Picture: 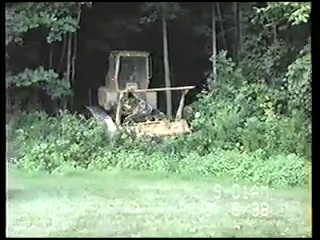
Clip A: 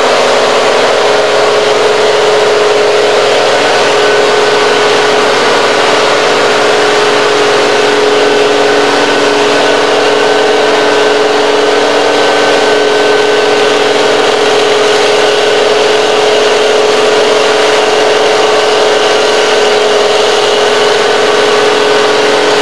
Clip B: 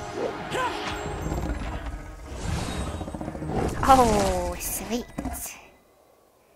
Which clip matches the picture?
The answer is A